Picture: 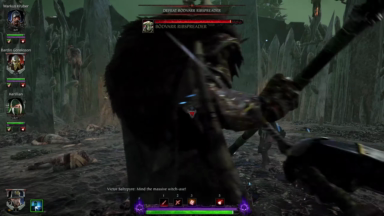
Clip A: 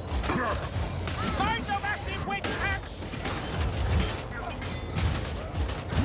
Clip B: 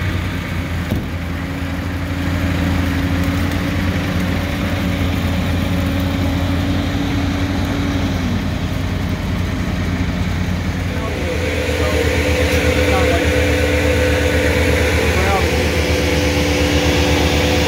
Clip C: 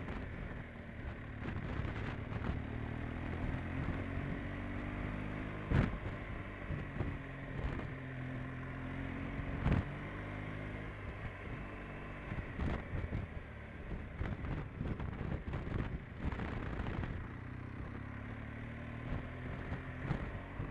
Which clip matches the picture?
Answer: A